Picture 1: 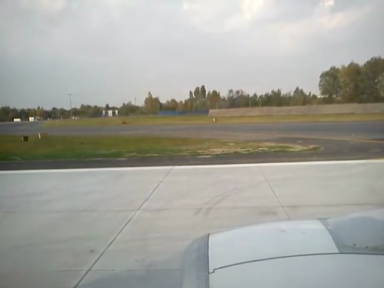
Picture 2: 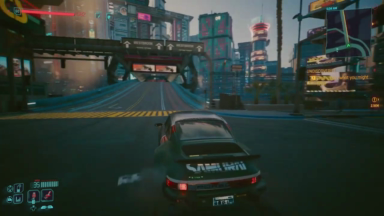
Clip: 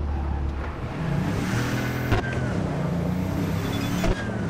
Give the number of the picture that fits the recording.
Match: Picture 2